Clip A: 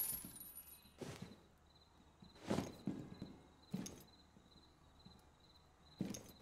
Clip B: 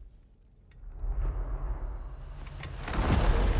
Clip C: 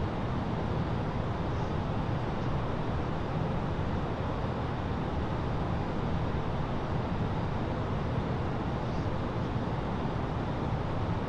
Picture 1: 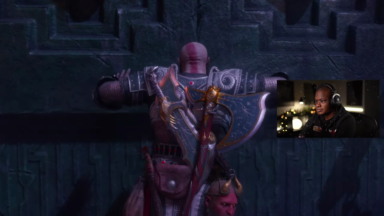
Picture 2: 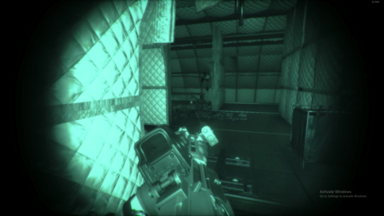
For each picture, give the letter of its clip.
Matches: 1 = B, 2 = A